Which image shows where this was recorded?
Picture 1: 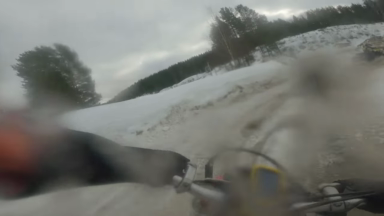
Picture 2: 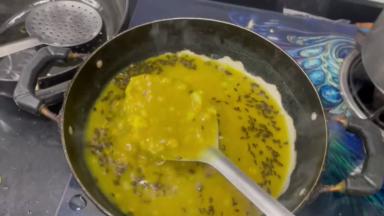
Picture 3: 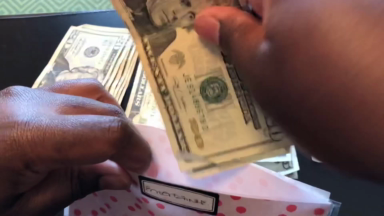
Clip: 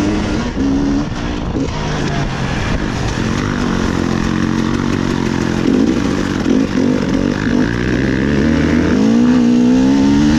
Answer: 1